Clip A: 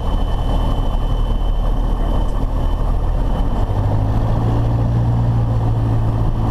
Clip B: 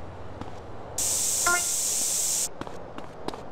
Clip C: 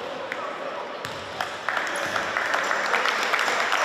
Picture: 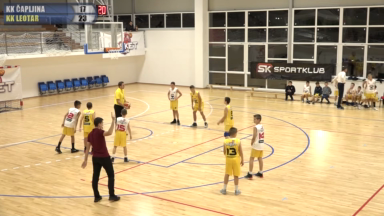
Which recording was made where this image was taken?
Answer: C